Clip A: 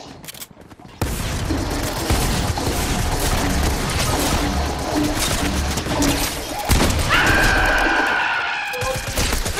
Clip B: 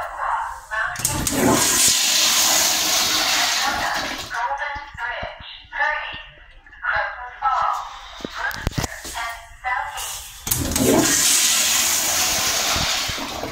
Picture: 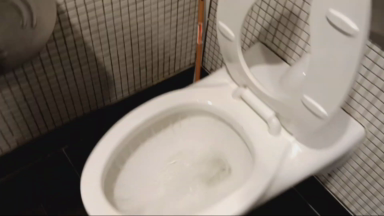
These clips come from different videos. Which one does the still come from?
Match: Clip B